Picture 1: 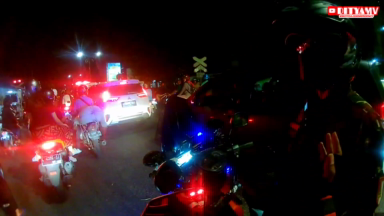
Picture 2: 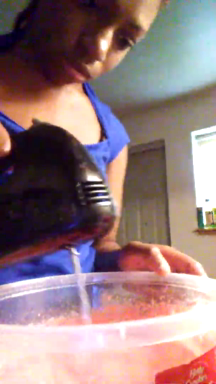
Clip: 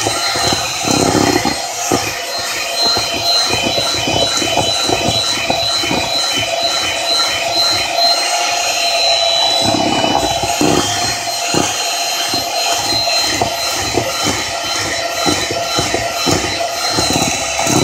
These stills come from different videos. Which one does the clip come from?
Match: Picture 2